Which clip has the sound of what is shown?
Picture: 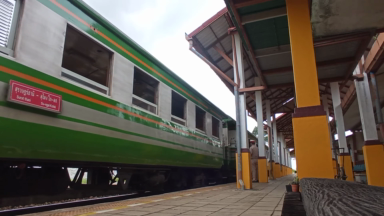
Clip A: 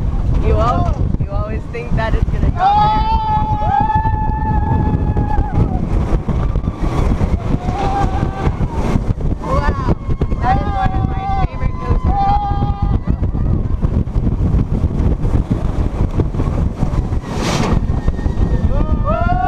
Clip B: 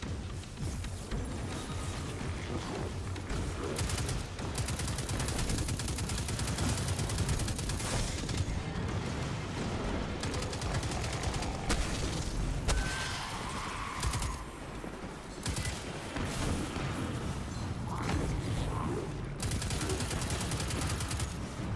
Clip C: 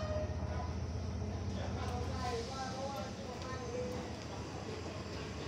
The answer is C